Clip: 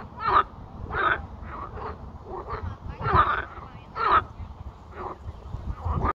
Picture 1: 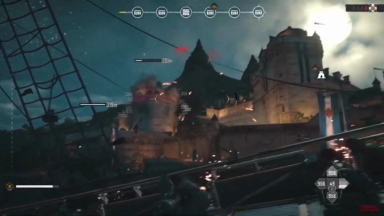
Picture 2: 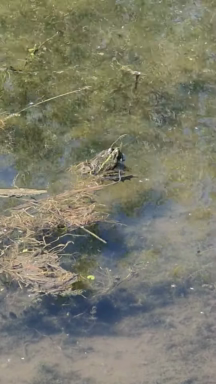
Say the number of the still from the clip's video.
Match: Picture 2